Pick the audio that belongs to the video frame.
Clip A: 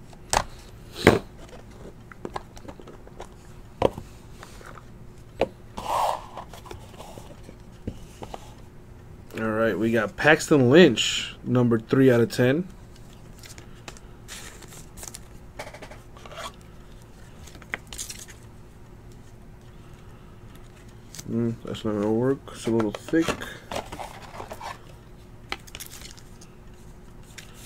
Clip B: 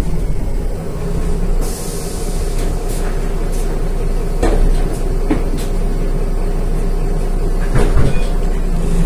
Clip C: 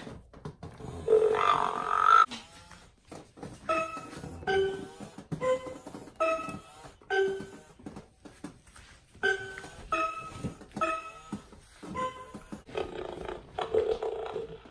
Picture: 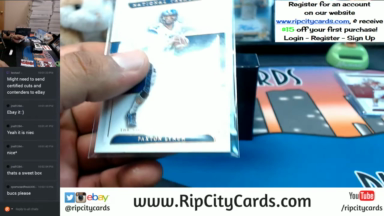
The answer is A